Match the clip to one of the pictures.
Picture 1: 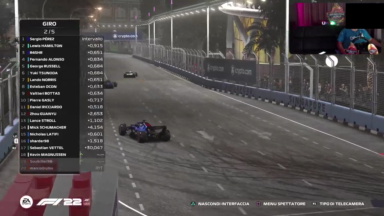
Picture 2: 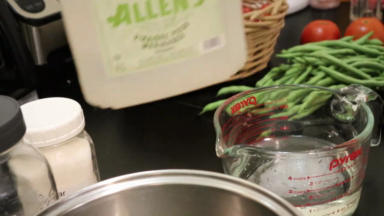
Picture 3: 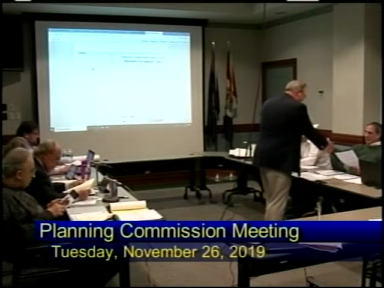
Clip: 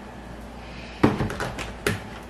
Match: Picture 2